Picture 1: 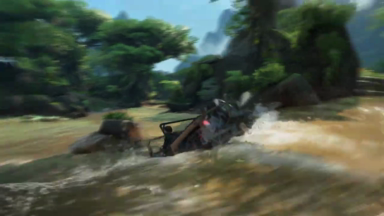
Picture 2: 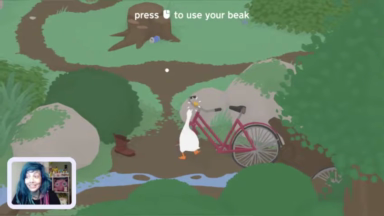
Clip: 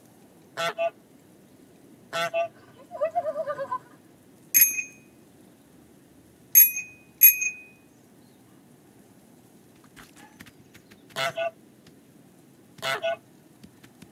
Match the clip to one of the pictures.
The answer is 2